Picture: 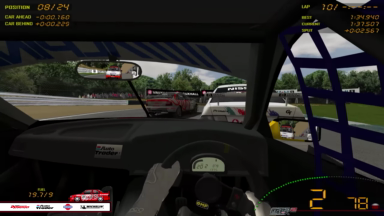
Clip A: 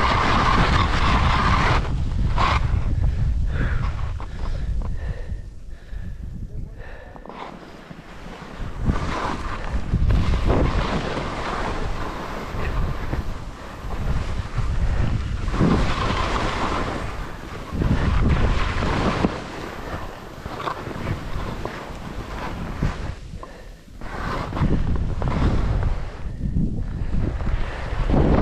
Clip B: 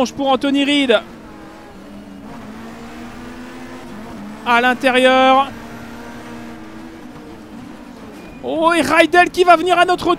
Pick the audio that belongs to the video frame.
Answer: B